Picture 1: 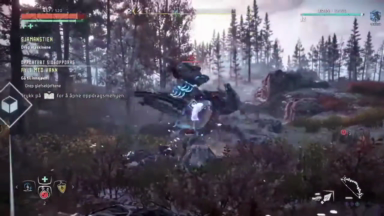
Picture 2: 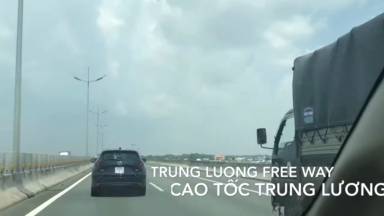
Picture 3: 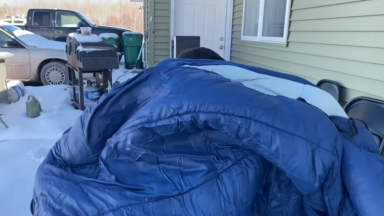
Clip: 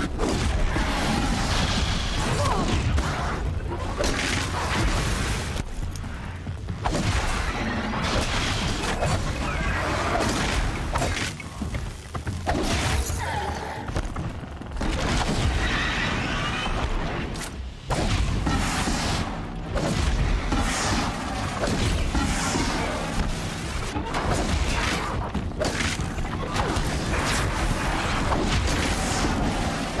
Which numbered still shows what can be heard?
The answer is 1